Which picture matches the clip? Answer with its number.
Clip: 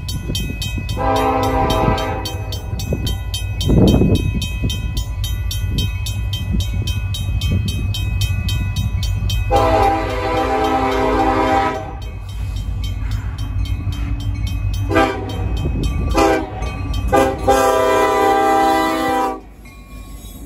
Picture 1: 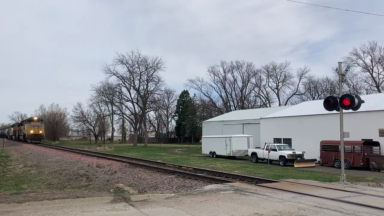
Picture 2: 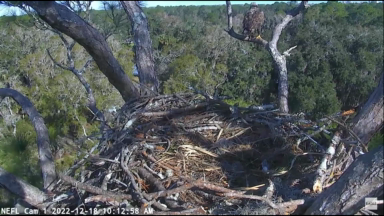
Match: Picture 1